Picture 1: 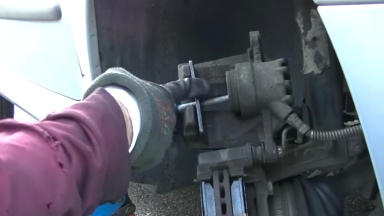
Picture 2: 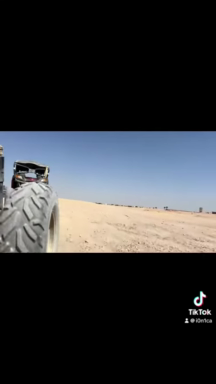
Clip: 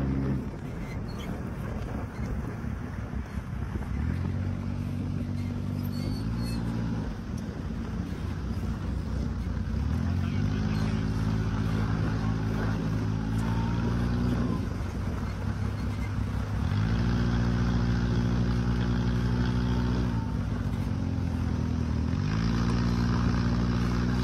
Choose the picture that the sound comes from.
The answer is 2